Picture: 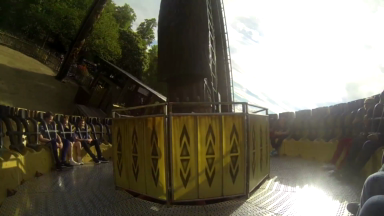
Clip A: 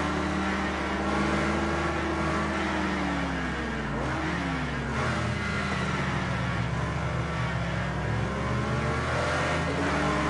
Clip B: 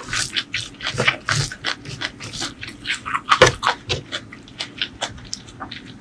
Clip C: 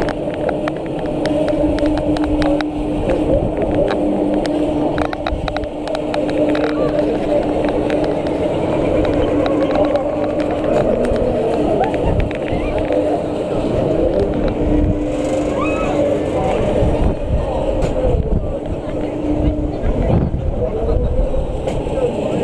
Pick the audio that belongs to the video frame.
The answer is C